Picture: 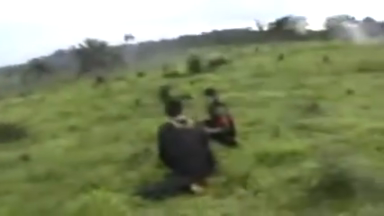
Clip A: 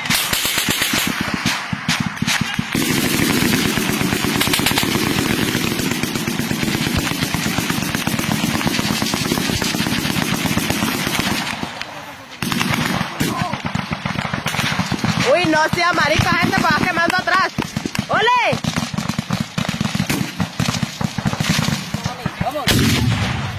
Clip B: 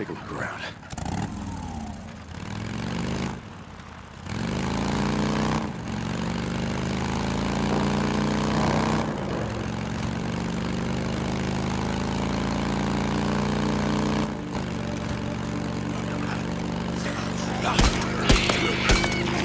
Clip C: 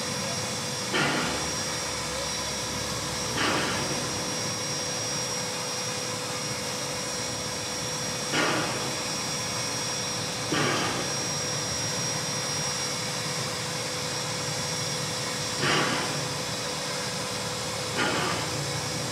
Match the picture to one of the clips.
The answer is A